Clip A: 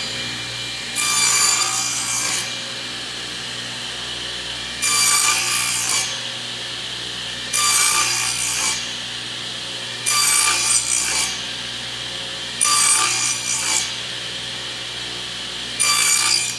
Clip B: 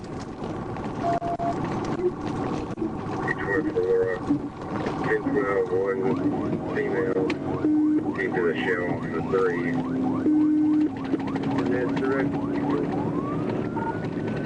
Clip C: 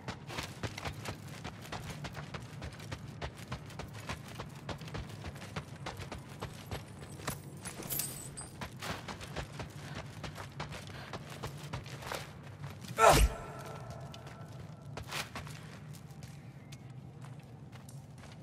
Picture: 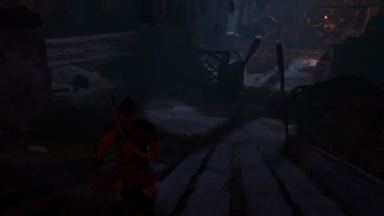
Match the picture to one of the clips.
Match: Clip C